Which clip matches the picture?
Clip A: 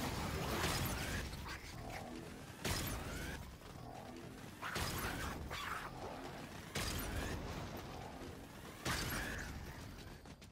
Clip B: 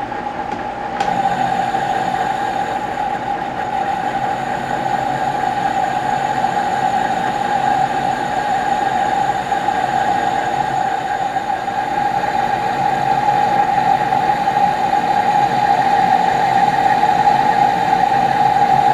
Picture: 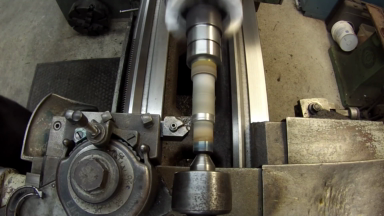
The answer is B